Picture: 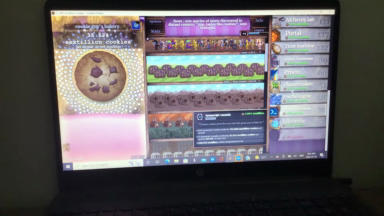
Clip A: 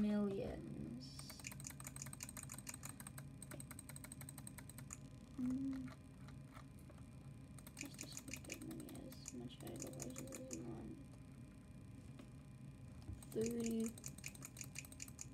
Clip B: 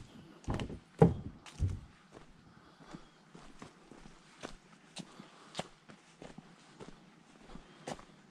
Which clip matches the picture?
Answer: A